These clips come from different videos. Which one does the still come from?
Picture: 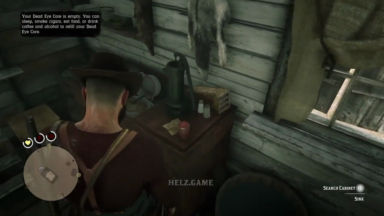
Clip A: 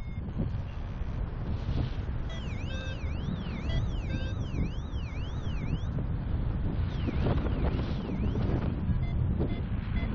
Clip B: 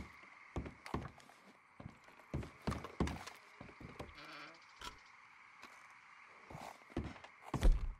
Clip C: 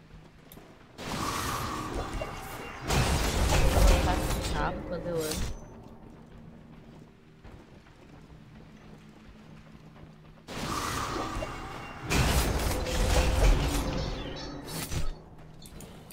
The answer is B